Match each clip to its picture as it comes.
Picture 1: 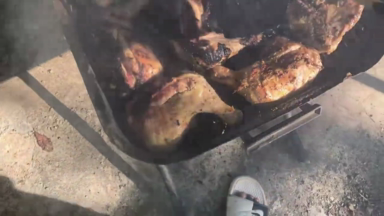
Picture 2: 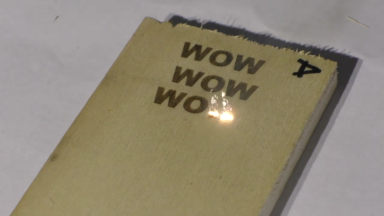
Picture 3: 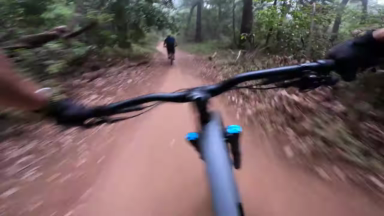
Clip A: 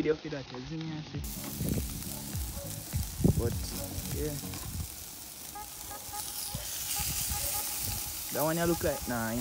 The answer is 1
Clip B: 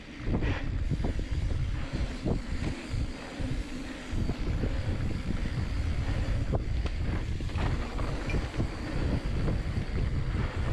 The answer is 3